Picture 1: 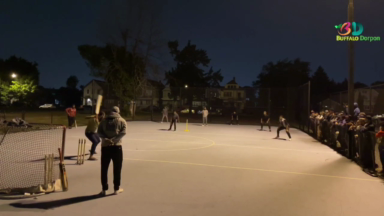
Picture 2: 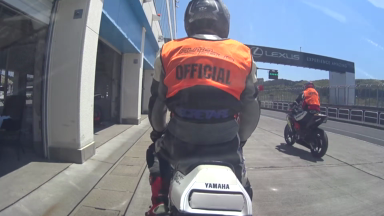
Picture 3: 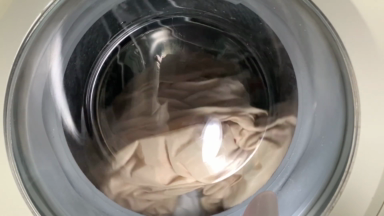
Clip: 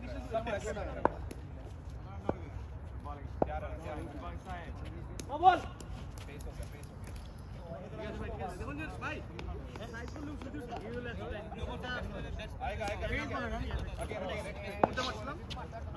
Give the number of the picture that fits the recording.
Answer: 1